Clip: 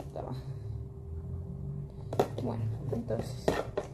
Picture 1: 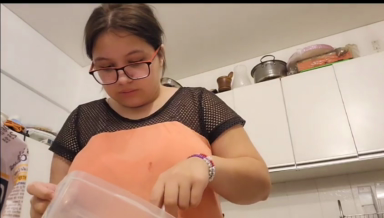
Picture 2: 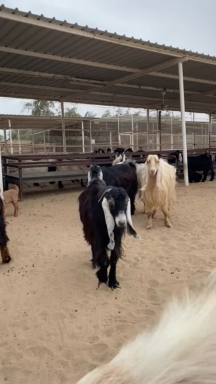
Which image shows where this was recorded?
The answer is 1